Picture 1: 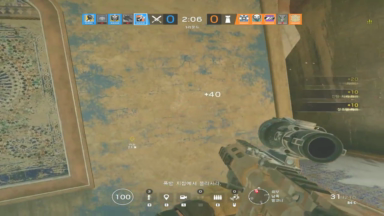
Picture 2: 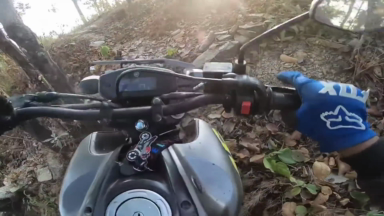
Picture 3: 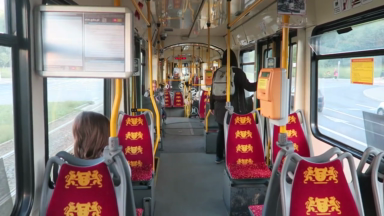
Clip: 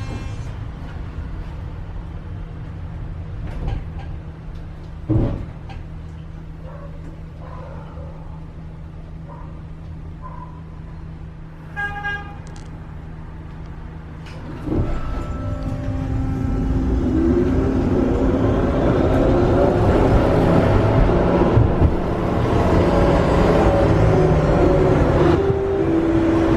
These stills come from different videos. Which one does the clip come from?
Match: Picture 3